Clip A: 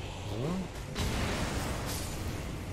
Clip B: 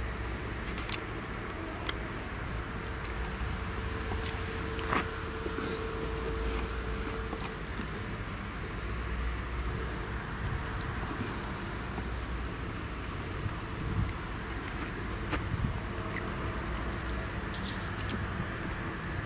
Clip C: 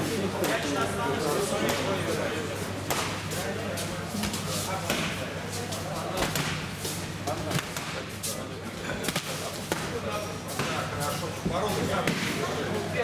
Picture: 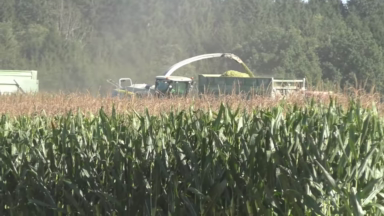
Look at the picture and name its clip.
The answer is B